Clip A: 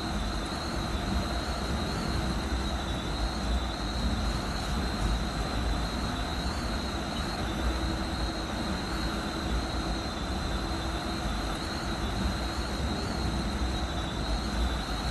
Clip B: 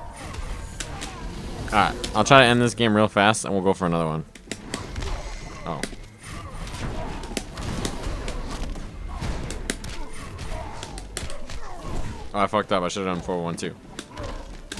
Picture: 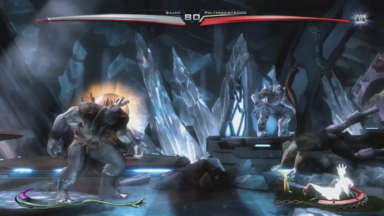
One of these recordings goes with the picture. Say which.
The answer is B